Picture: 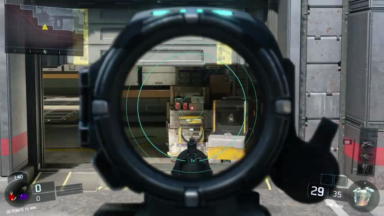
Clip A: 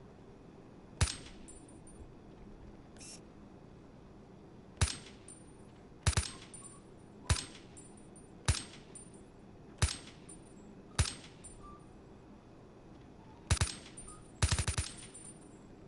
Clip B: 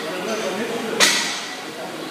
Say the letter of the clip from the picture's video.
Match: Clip A